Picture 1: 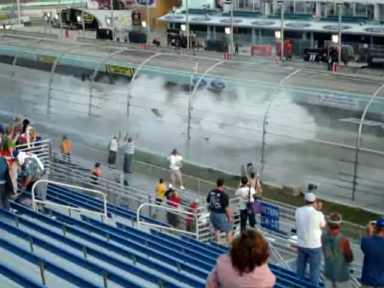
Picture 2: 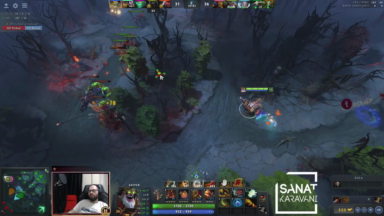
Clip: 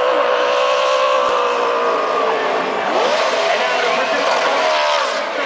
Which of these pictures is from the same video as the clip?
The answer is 1